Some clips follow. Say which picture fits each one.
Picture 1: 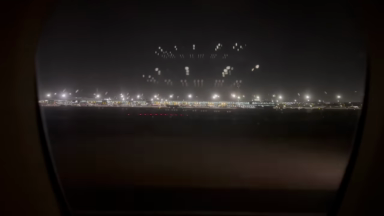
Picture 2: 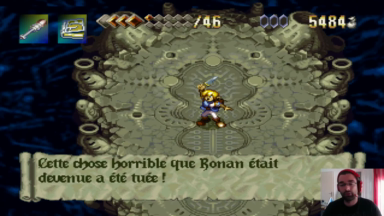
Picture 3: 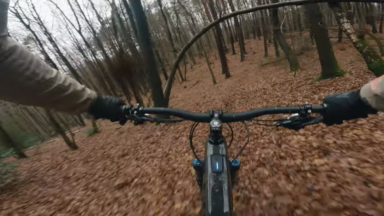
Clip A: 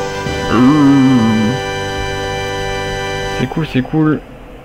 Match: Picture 2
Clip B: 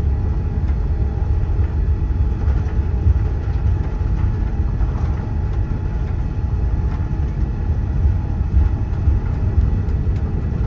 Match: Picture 1